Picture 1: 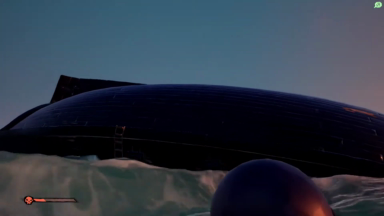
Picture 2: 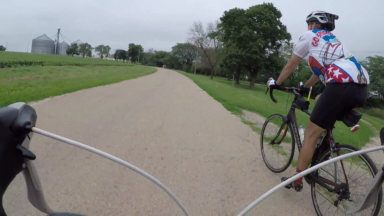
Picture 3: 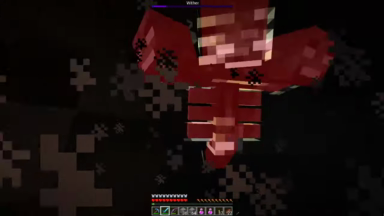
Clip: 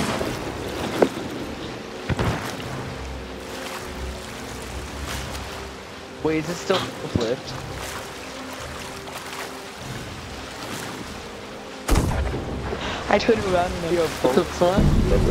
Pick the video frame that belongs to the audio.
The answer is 1